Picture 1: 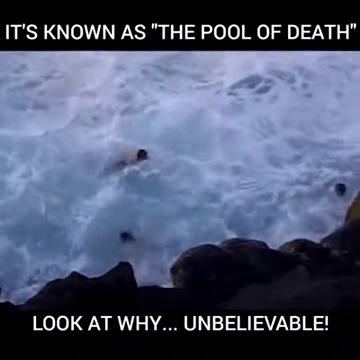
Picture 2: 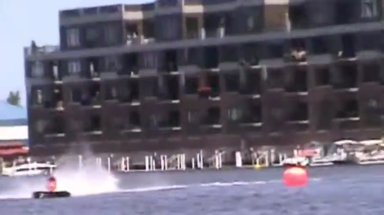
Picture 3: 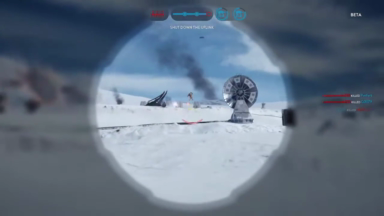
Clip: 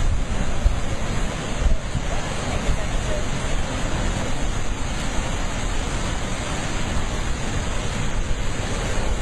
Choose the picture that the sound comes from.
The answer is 1